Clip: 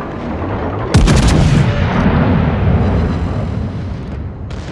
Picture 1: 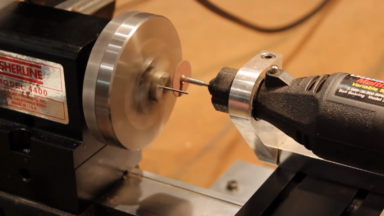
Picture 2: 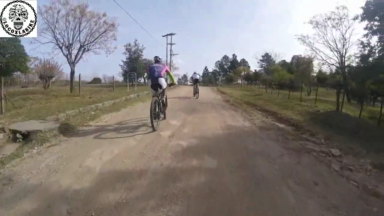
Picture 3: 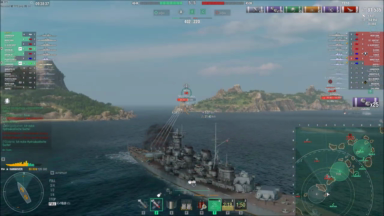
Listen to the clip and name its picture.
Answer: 3